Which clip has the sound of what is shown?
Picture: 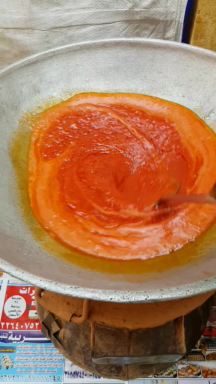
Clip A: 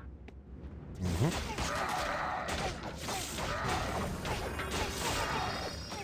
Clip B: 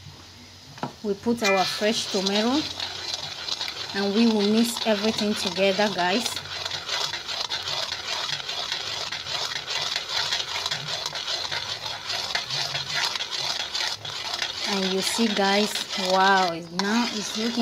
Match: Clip B